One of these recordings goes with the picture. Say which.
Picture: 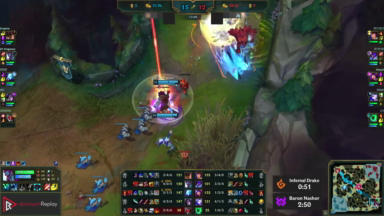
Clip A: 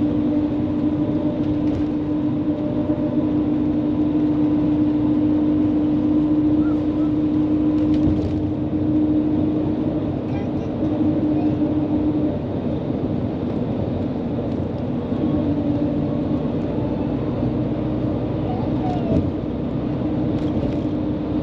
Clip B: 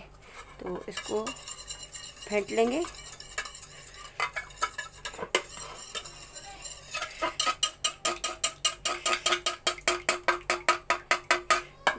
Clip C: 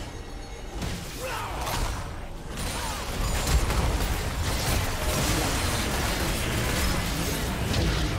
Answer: C